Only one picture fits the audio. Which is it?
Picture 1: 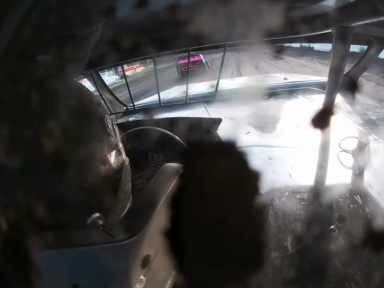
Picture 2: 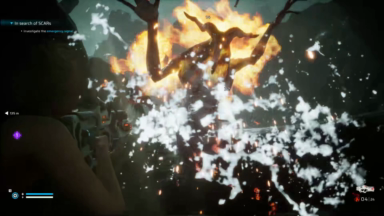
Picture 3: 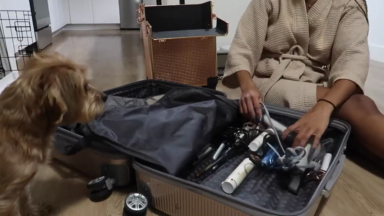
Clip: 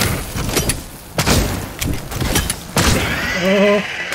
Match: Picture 2